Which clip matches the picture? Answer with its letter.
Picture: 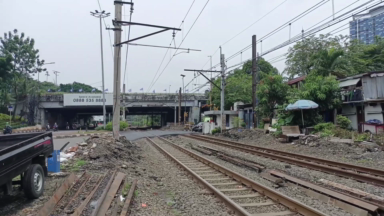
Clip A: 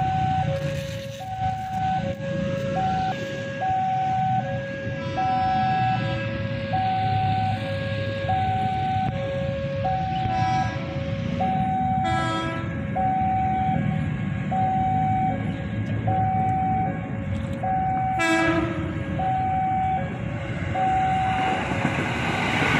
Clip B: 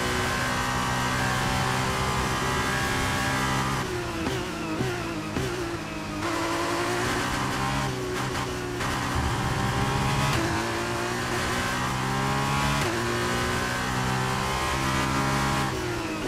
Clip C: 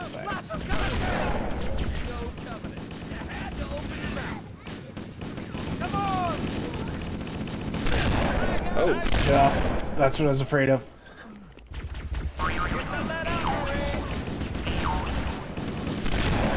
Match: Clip A